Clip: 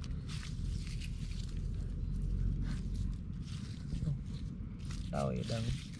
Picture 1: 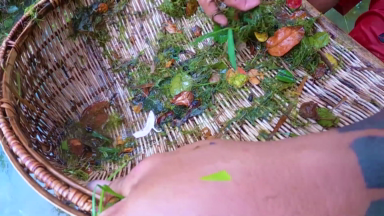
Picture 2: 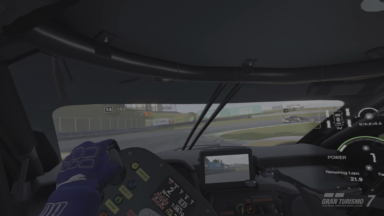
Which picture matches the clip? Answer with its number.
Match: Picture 1